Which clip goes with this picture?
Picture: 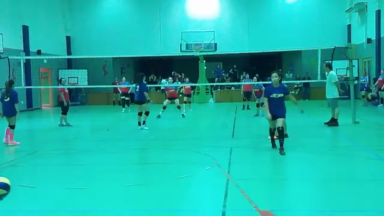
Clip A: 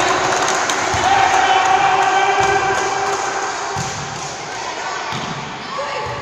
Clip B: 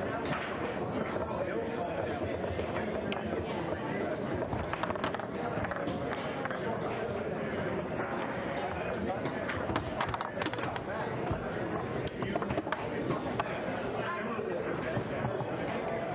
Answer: A